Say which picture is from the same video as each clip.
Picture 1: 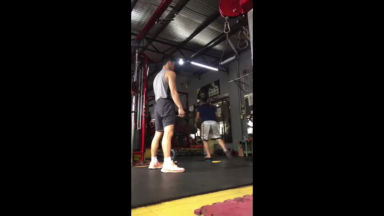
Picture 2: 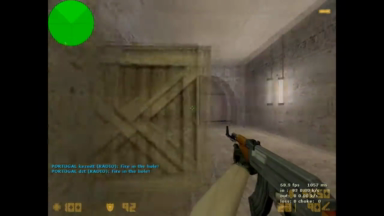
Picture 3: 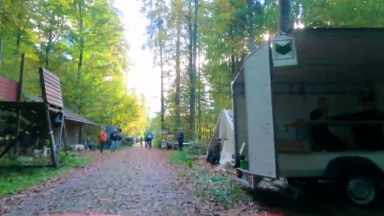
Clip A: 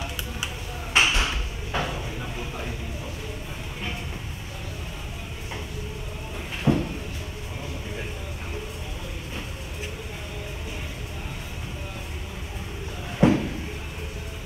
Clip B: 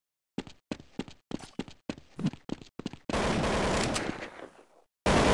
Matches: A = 1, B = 2